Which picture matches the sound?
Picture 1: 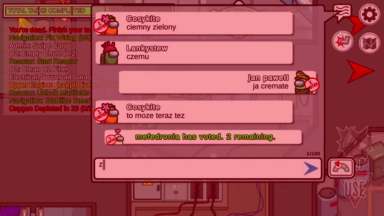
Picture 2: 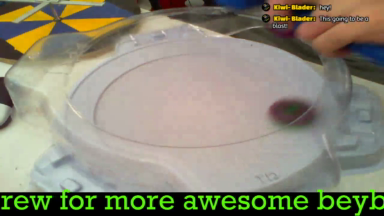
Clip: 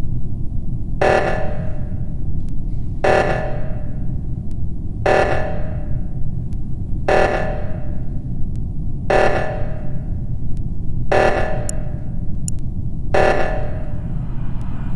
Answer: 1